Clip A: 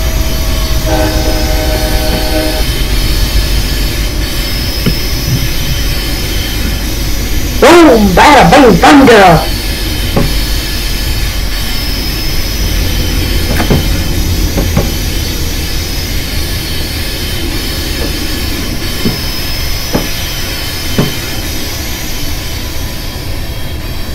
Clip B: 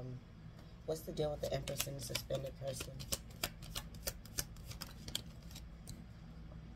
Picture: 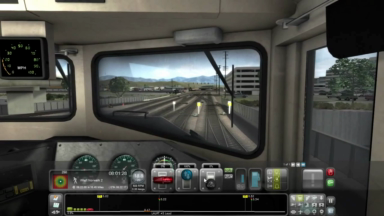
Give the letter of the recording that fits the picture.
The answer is A